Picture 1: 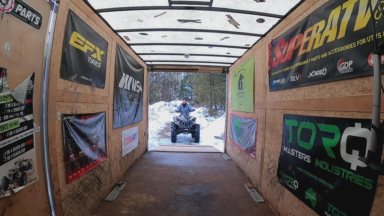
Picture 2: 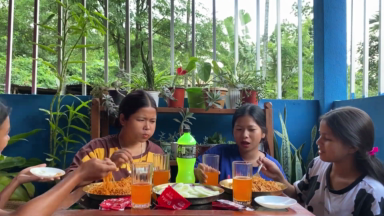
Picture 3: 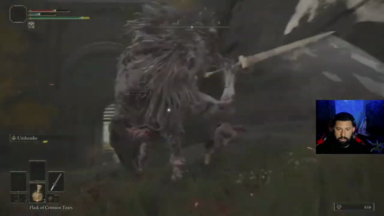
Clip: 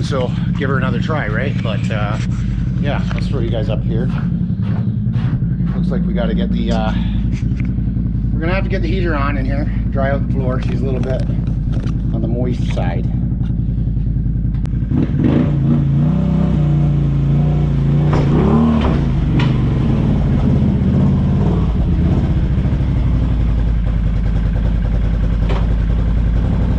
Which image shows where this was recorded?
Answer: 1